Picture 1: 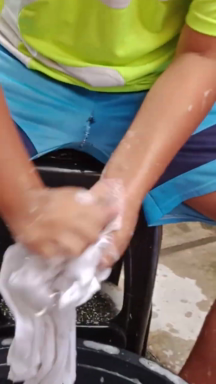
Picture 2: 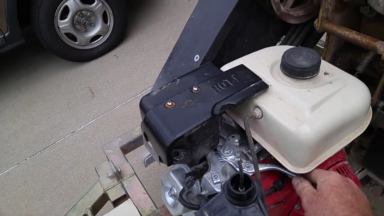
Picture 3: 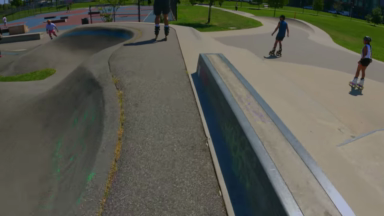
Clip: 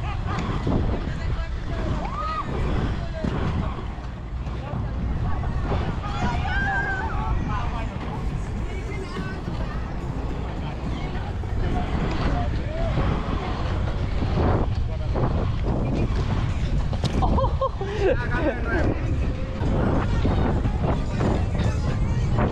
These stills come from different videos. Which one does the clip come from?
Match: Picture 3